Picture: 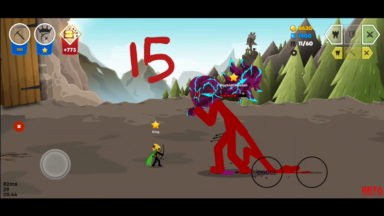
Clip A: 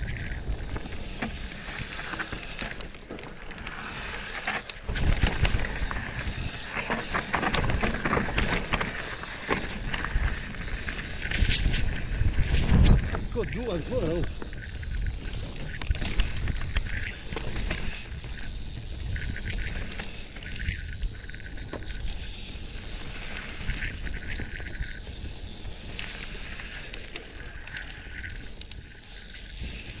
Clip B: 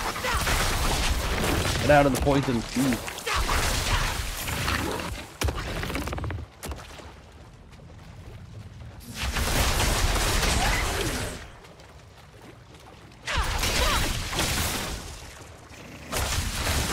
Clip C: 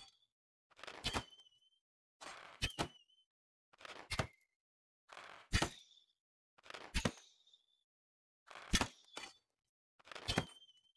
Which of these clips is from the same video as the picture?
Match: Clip C